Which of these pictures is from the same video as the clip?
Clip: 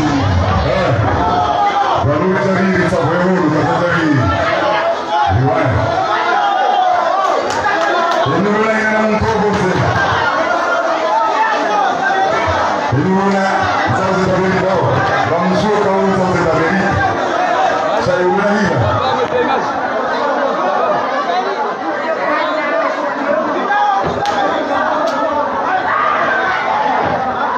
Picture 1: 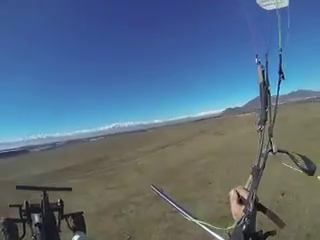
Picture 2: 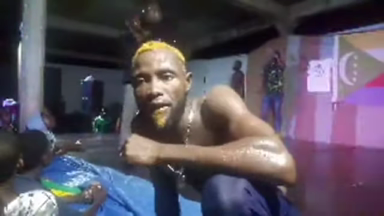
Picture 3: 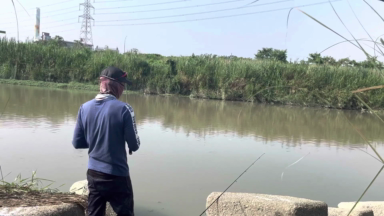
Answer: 2